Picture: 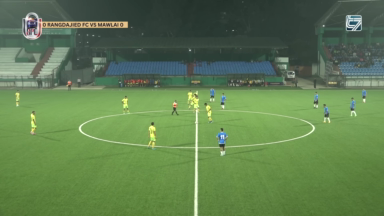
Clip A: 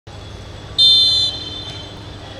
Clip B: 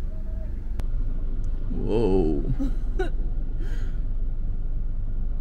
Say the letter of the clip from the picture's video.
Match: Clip A